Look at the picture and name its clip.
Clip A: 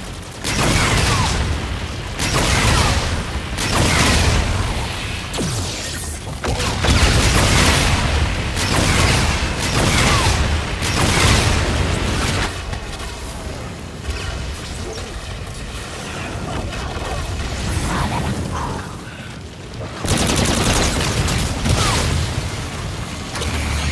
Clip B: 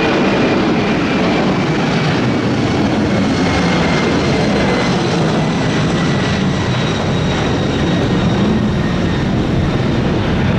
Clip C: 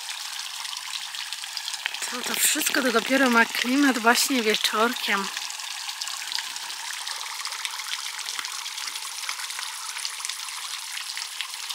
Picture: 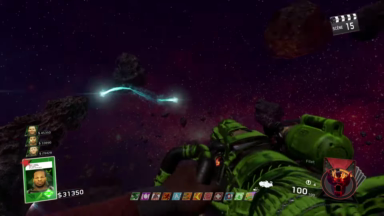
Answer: A